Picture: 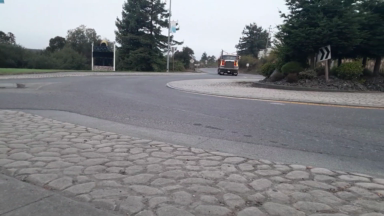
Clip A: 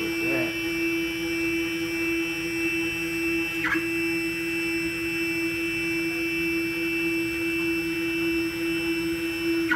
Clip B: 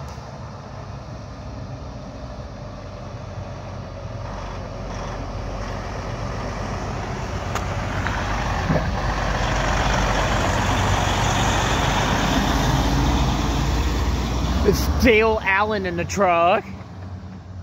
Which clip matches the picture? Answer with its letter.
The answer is B